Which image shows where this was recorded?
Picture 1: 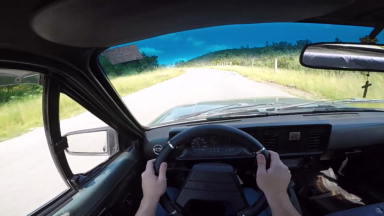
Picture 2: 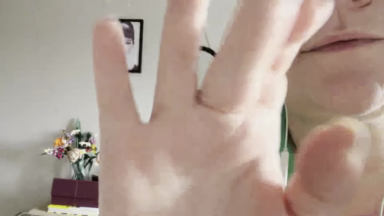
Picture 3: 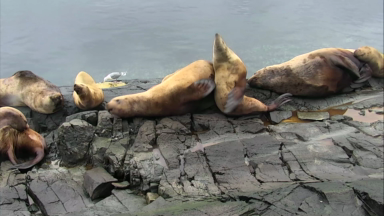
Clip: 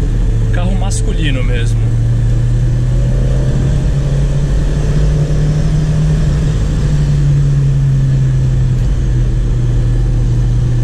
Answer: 1